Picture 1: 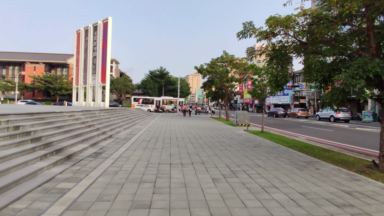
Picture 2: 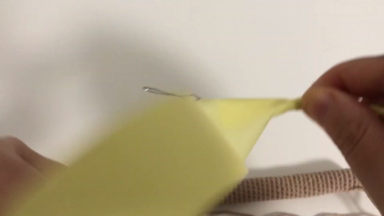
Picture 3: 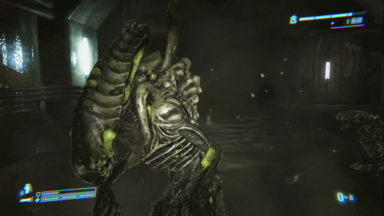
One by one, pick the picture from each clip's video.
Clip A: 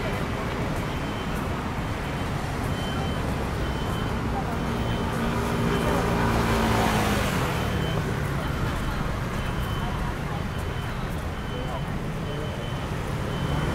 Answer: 1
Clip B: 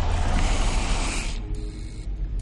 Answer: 3